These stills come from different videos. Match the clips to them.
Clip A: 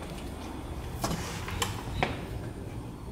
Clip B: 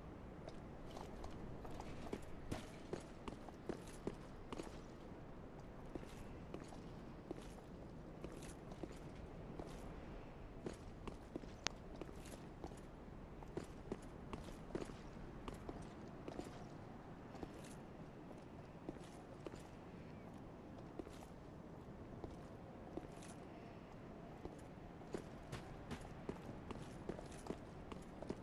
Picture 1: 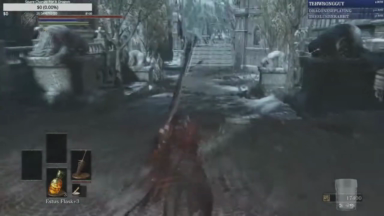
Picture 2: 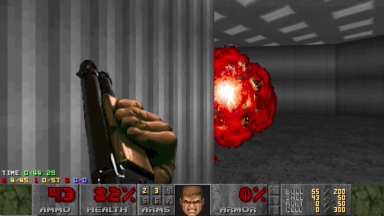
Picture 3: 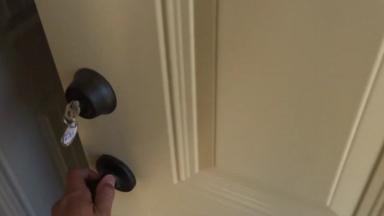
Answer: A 3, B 1